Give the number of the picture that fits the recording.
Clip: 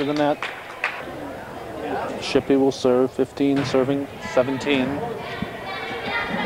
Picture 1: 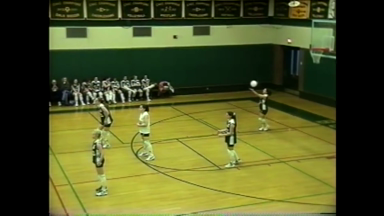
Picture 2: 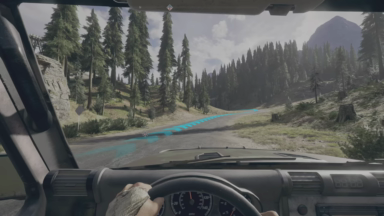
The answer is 1